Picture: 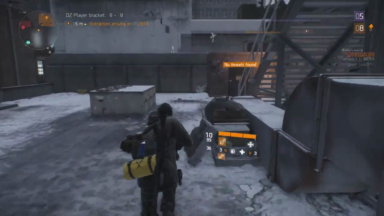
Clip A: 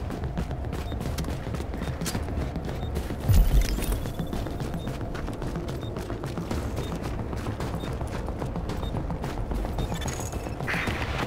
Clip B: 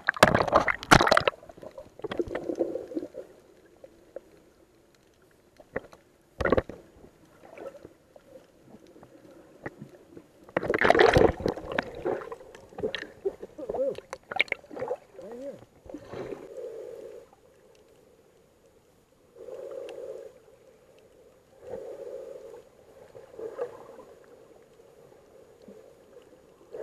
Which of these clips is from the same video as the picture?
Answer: A